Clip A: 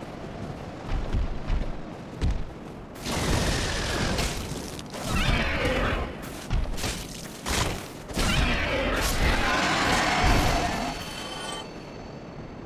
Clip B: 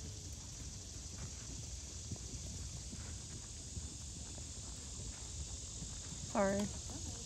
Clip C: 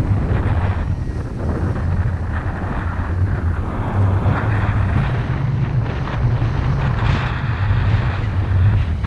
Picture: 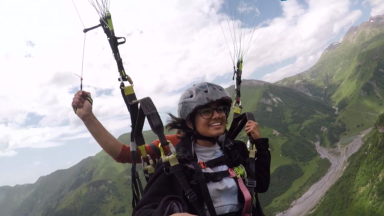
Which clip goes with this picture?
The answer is C